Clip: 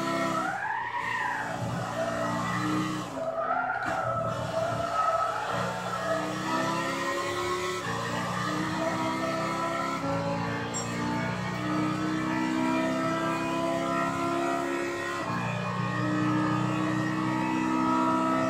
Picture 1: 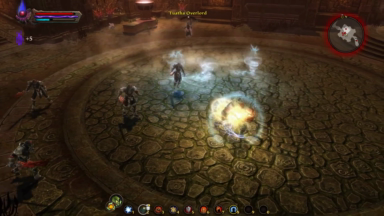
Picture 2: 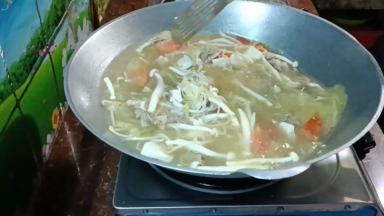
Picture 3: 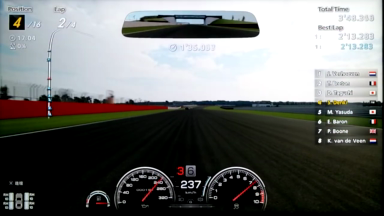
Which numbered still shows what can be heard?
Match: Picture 3